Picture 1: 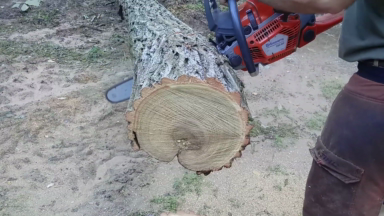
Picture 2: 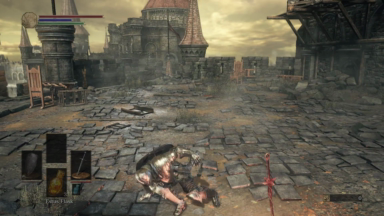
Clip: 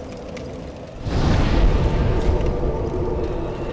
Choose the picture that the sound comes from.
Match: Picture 2